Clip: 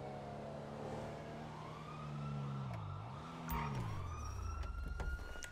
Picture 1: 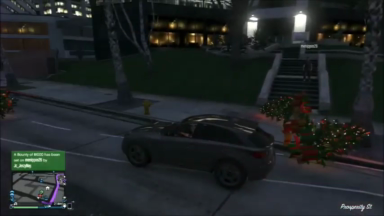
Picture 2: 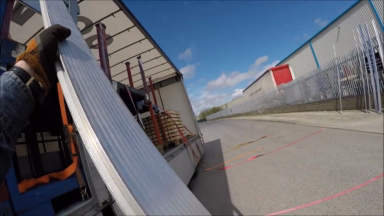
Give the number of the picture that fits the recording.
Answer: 1